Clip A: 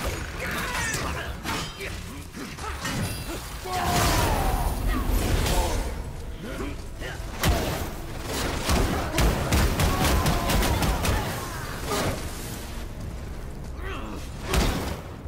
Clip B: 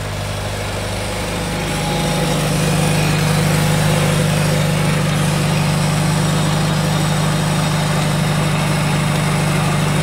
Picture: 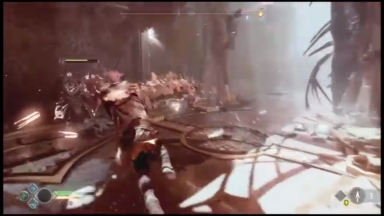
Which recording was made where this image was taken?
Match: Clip A